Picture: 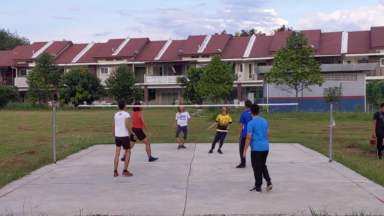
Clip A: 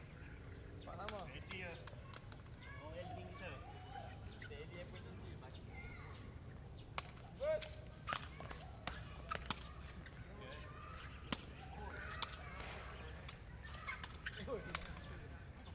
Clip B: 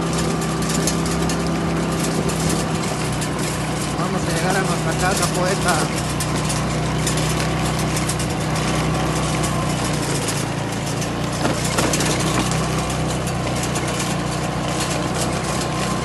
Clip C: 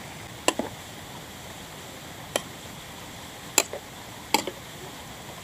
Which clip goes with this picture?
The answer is A